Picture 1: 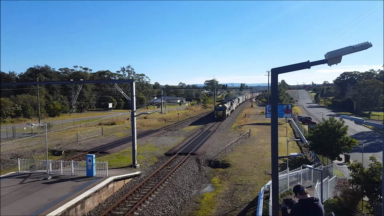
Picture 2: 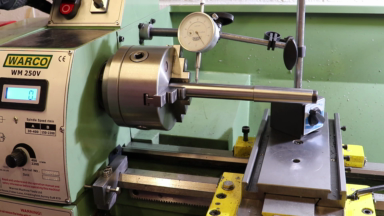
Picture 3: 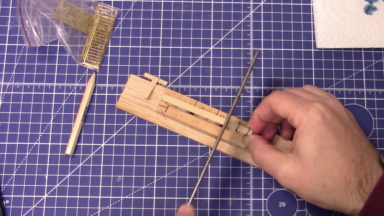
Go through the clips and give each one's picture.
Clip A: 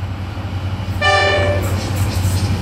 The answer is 1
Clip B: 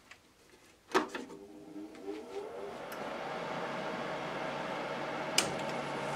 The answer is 2